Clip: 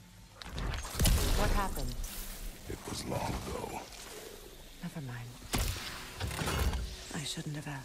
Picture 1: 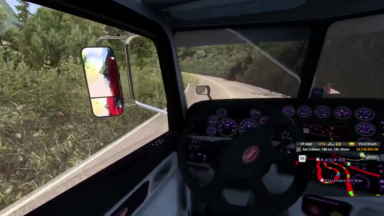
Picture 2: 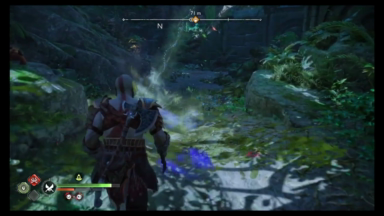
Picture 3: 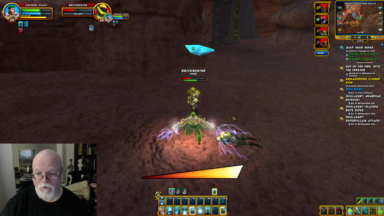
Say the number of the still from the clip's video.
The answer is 2